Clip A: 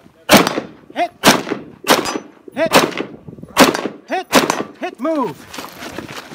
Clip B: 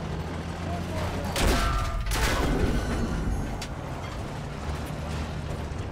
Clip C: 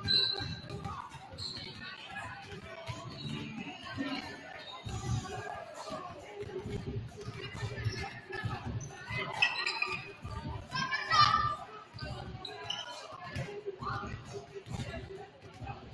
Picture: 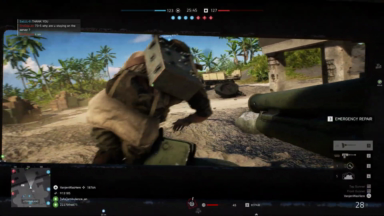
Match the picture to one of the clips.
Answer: B